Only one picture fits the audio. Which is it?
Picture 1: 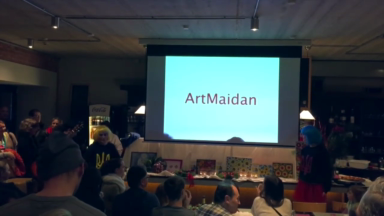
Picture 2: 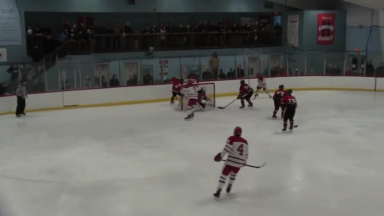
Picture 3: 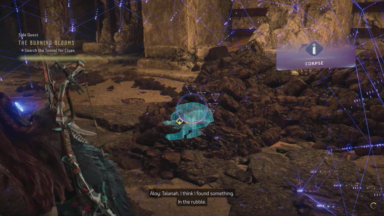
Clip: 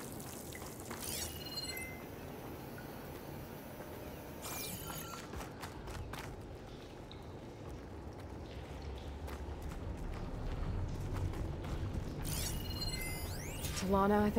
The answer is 3